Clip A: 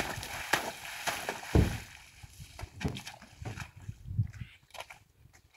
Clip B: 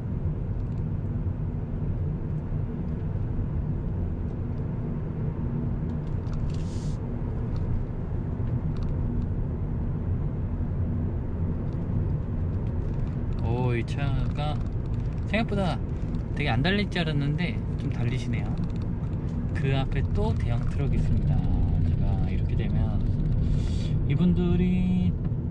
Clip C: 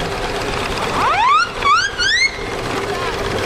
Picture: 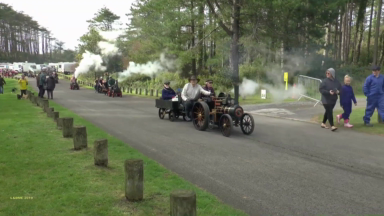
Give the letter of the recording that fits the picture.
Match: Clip C